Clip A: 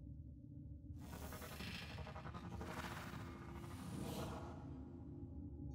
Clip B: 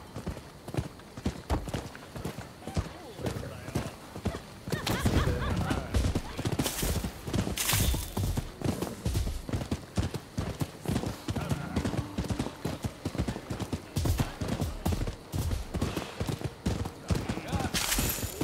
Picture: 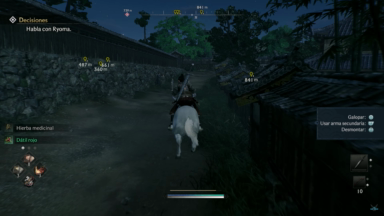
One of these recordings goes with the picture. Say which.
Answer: B